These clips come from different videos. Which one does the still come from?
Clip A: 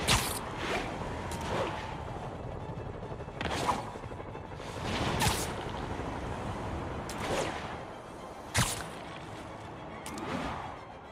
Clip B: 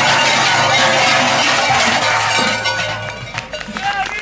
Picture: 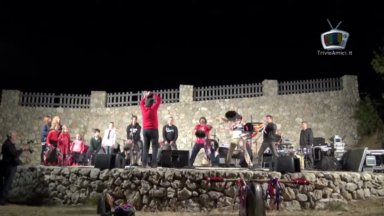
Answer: B